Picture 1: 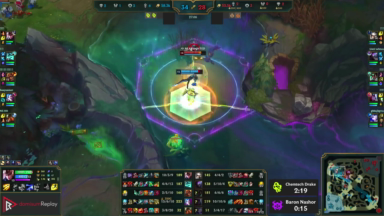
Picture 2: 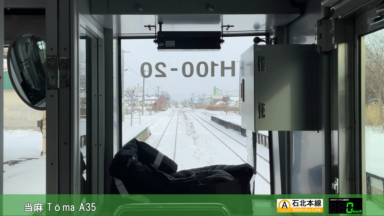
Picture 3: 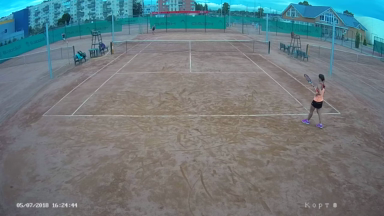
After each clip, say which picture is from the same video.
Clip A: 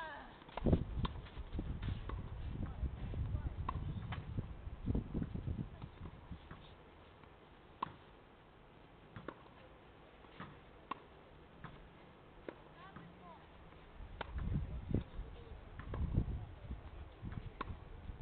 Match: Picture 3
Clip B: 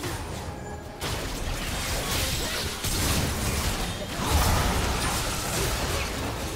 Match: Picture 1